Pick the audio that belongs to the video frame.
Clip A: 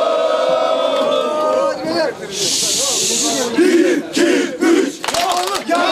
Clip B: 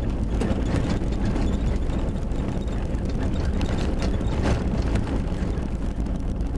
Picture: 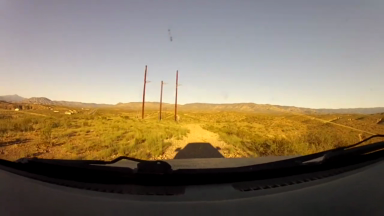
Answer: B